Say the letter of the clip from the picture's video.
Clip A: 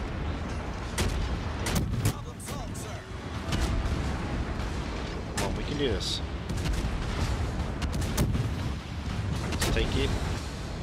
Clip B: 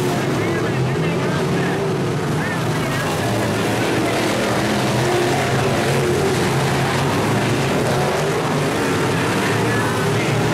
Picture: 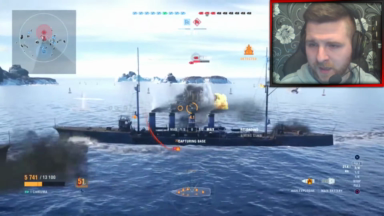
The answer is A